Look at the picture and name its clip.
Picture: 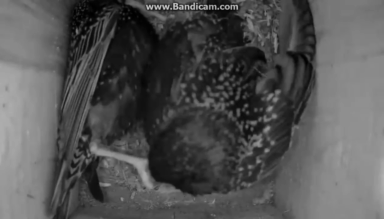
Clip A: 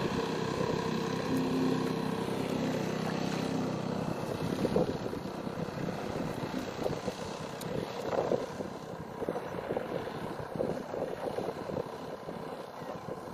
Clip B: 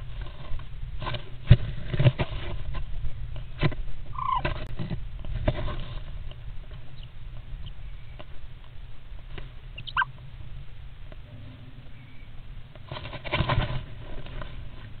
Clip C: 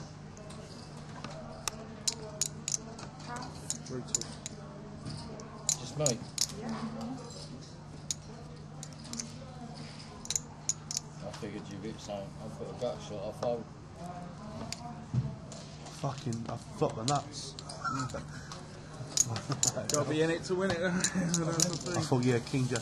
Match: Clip B